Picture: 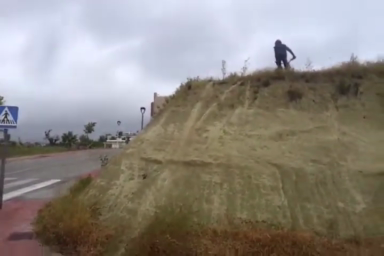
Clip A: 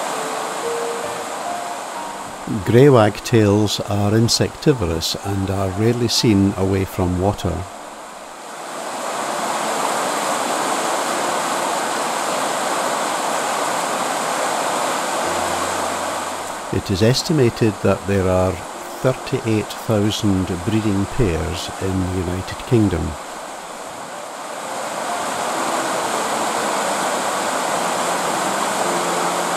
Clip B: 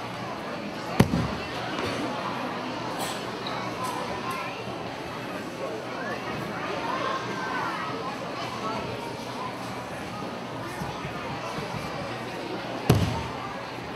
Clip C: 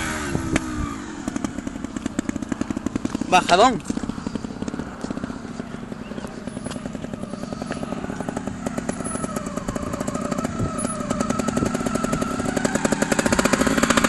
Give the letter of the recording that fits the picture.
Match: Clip C